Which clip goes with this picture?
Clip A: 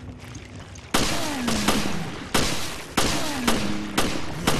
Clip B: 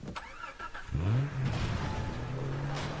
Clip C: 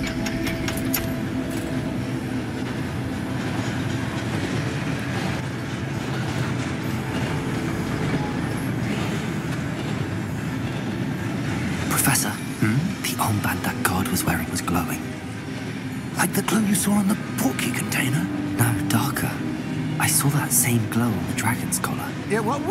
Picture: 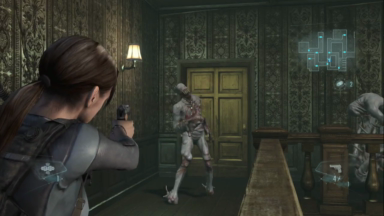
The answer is A